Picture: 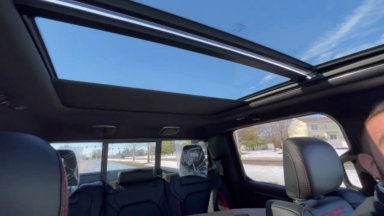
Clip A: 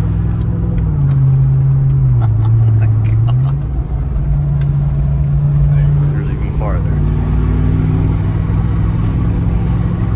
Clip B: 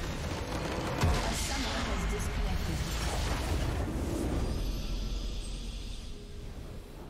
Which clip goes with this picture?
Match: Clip A